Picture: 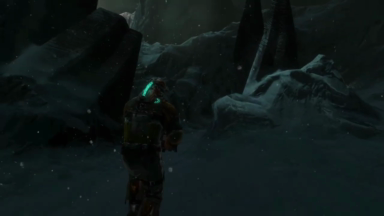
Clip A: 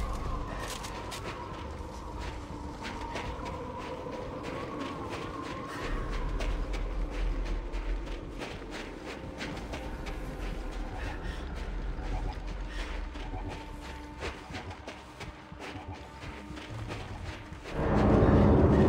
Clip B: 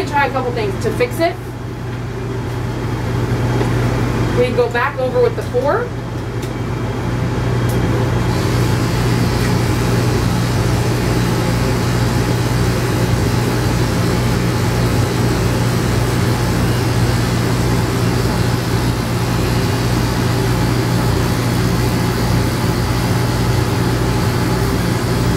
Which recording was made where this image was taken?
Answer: A